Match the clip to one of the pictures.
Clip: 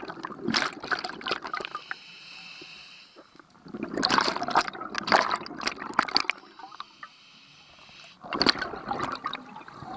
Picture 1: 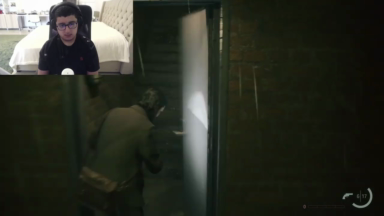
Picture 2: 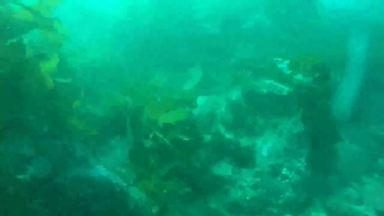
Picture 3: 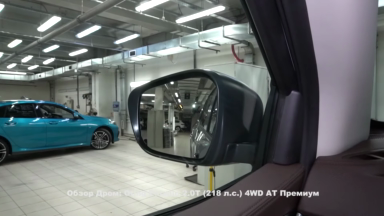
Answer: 2